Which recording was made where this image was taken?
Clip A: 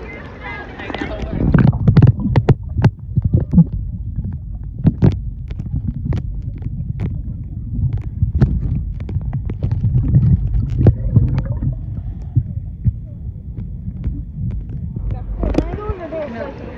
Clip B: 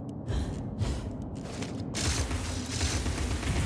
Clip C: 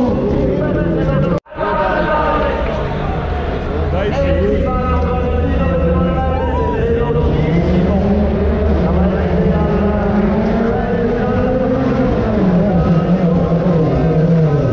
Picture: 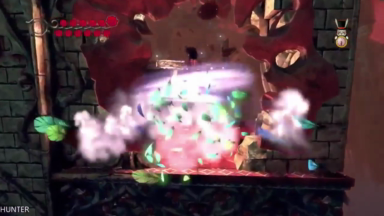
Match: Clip B